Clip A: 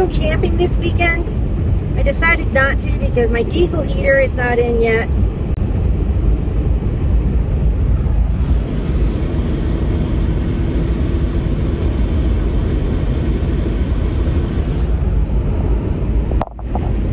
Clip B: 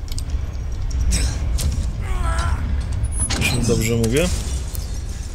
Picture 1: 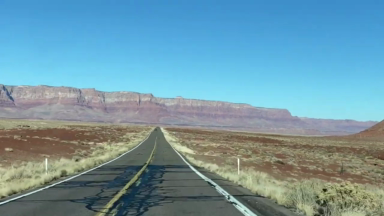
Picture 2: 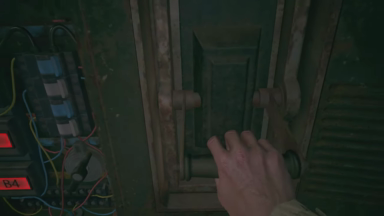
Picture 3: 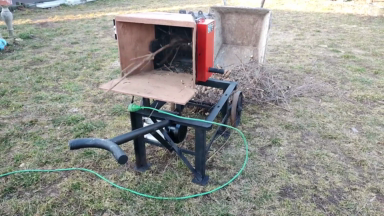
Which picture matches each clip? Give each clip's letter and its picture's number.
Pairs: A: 1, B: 2